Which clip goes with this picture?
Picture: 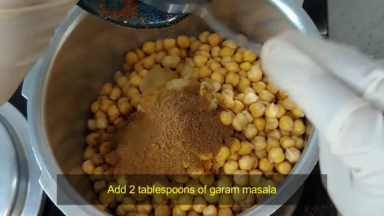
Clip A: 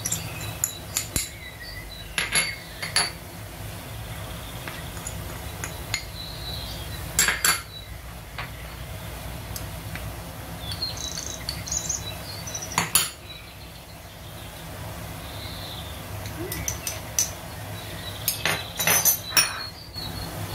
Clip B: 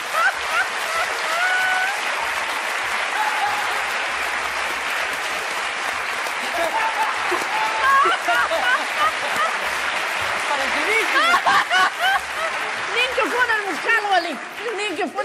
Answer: A